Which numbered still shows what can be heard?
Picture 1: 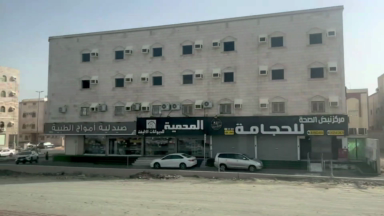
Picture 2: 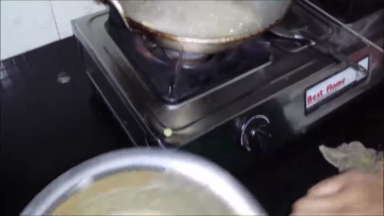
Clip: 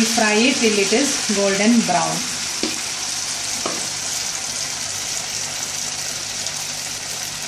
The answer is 2